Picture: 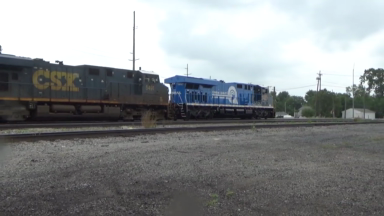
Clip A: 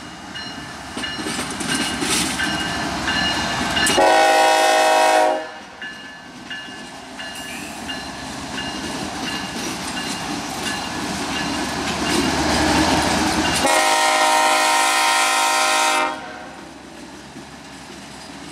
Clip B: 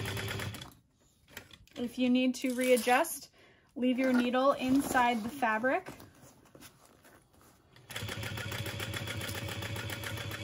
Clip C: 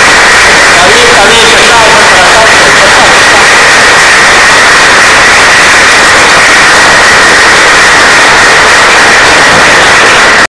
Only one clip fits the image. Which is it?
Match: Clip A